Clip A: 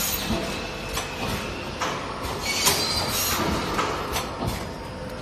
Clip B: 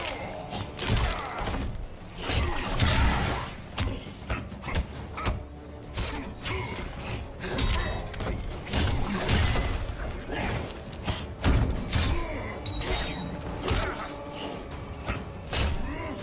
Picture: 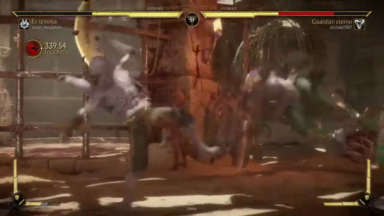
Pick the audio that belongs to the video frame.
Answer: B